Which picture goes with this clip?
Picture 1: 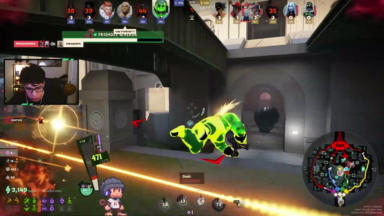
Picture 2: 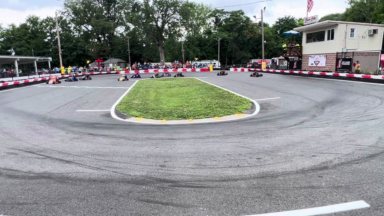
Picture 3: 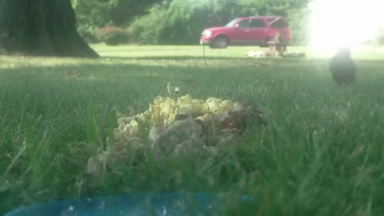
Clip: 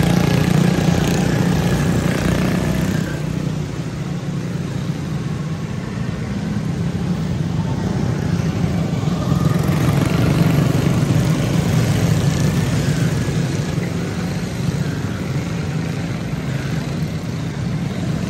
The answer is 2